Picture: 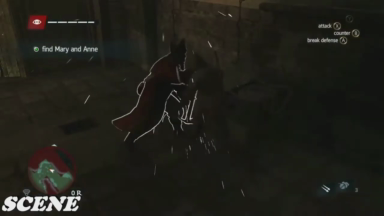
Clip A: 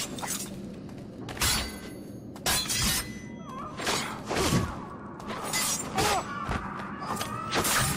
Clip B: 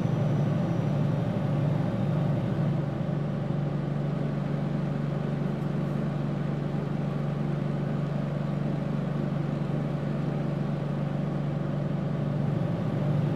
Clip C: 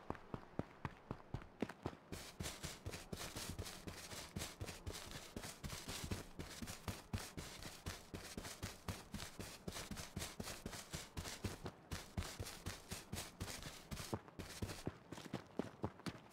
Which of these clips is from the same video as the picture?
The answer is A